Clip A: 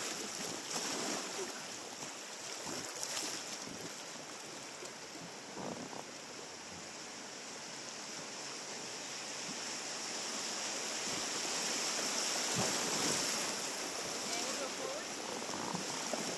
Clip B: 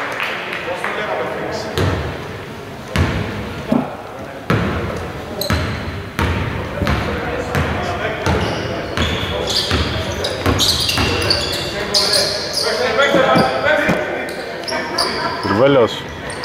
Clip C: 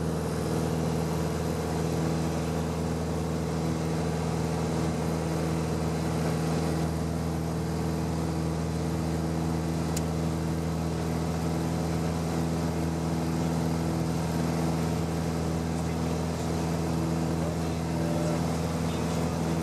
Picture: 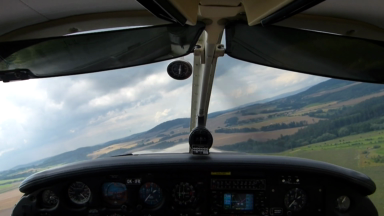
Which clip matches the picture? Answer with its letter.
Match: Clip C